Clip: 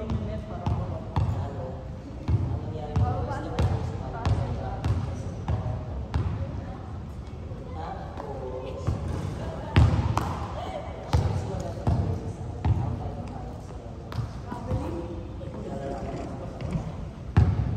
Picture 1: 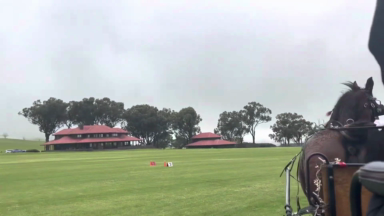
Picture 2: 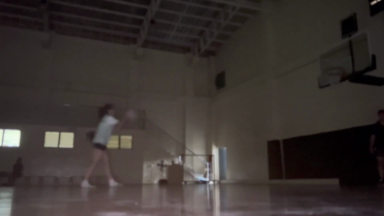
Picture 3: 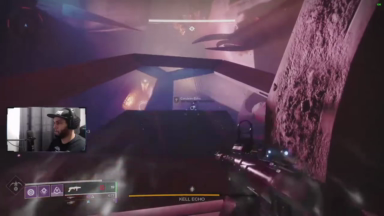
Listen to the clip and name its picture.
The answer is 2